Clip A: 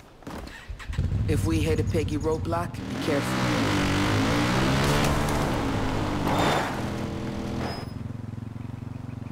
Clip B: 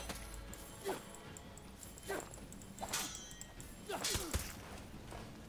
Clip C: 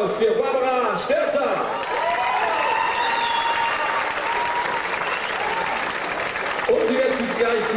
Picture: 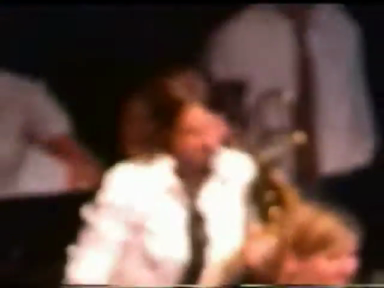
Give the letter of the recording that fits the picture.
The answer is C